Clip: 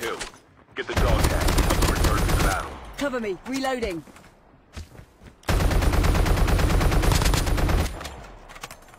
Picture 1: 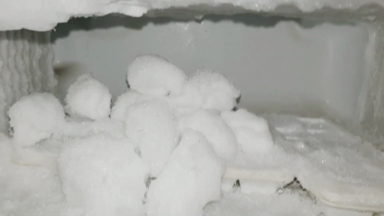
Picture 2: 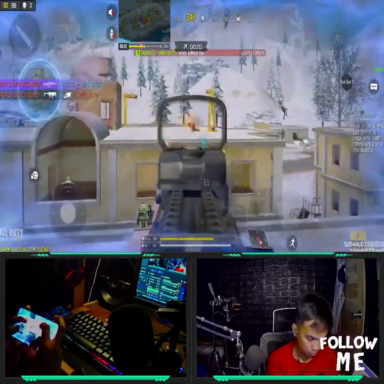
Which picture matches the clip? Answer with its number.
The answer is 2